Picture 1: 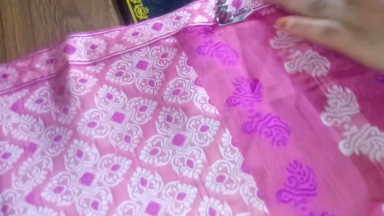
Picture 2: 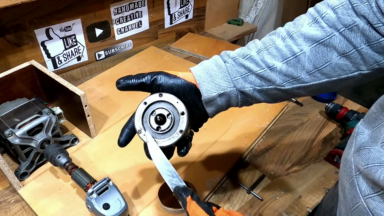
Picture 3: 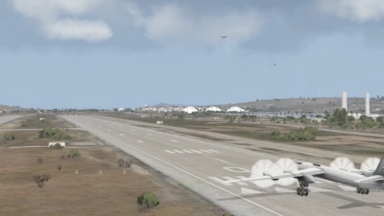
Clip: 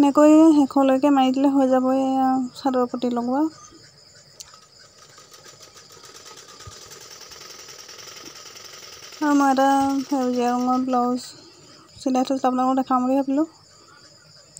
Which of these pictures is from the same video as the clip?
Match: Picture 1